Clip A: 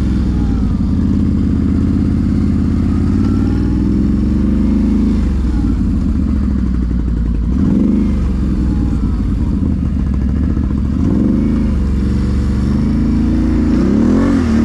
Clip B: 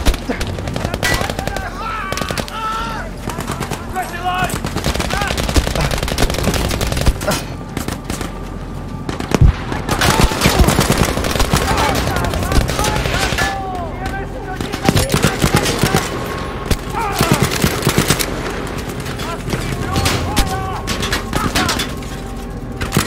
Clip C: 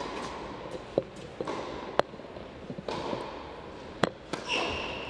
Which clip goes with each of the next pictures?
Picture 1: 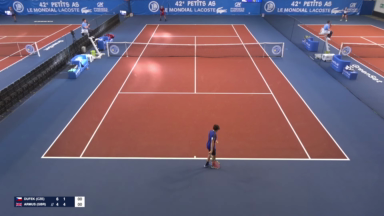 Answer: C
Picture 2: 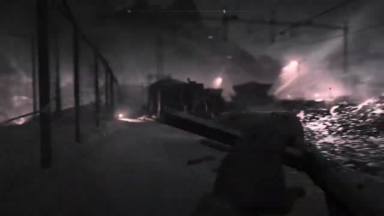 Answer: B